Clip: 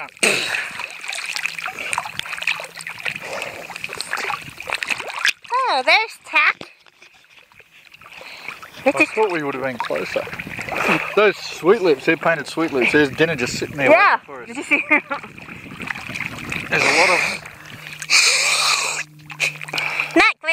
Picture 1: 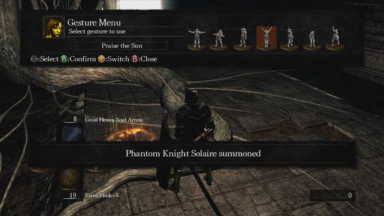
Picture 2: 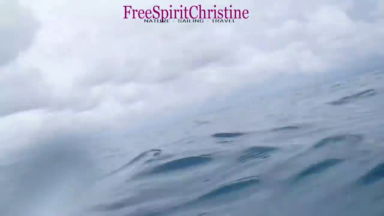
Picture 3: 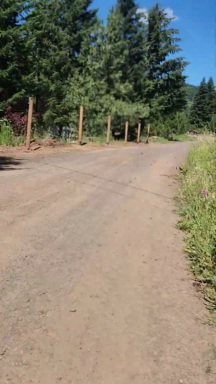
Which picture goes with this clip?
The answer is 2